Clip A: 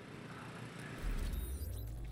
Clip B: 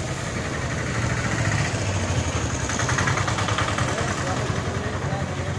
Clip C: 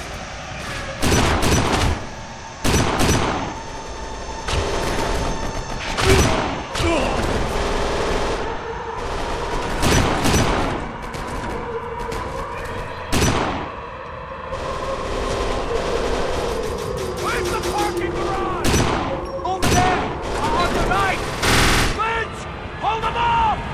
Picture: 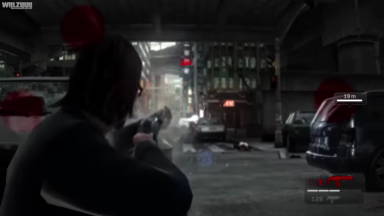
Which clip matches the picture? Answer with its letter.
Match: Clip C